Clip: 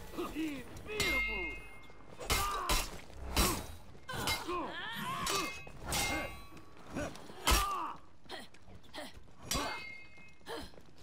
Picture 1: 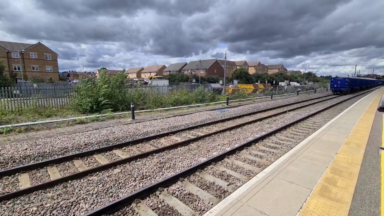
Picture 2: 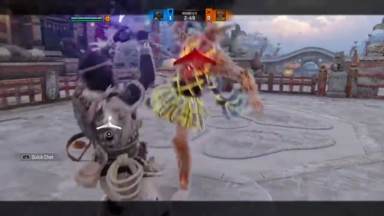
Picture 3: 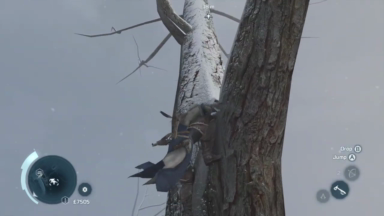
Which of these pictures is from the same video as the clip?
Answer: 2